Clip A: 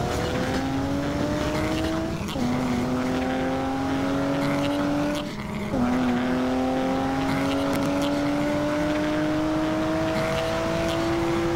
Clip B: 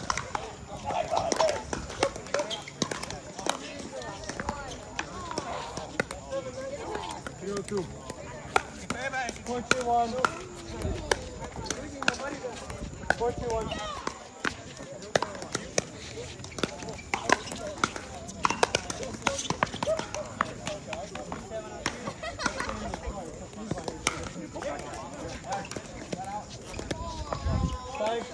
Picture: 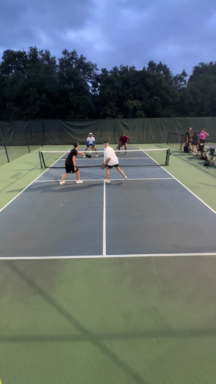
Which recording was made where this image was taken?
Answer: B